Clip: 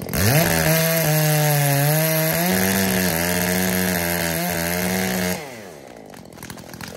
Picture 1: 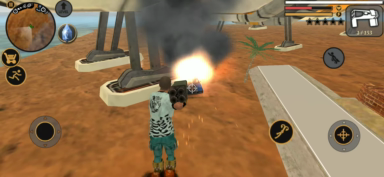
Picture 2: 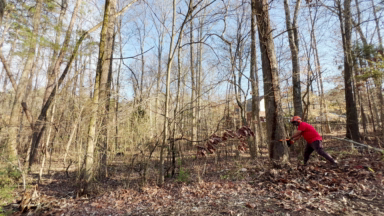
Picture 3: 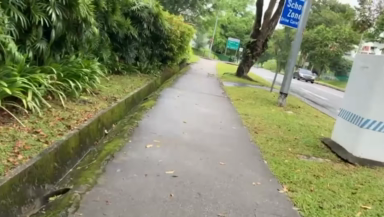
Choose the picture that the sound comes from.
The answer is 2